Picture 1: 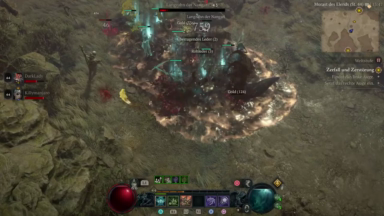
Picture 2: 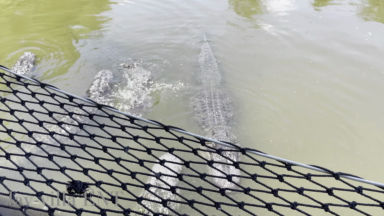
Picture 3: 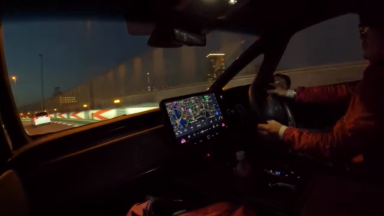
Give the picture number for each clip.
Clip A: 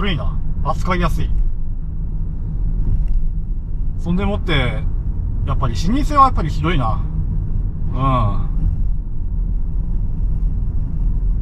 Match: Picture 3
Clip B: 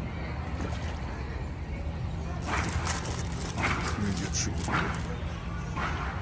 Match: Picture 2